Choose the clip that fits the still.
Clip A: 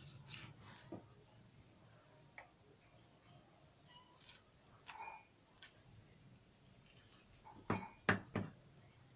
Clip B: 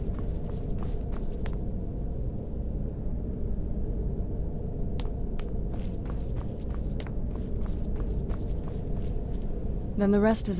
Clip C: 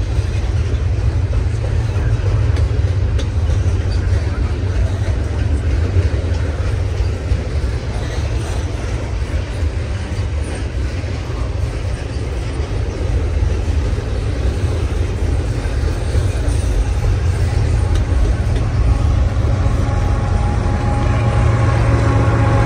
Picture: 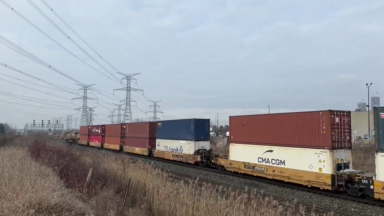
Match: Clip C